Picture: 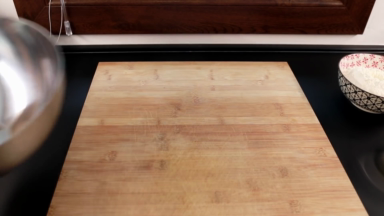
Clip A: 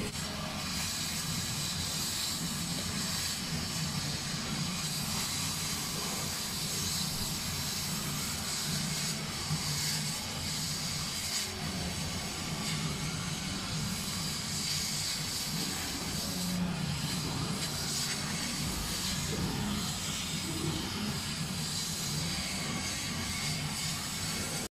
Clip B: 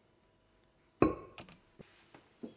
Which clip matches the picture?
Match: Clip B